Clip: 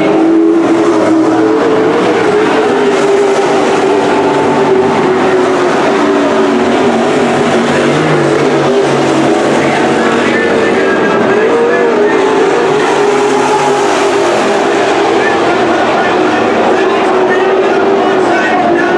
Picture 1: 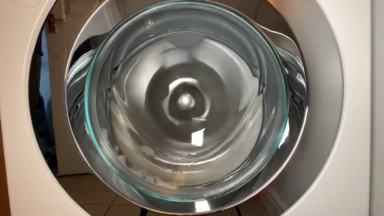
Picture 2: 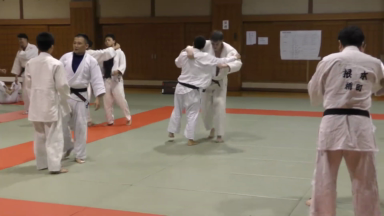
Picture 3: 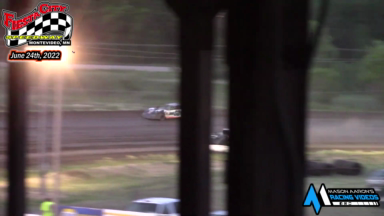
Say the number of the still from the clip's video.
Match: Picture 3